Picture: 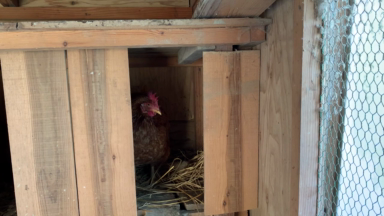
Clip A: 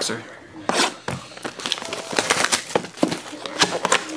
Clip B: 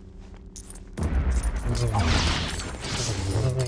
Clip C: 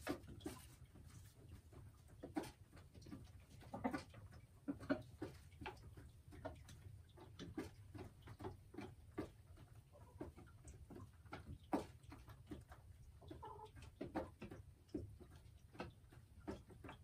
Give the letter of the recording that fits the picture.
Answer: C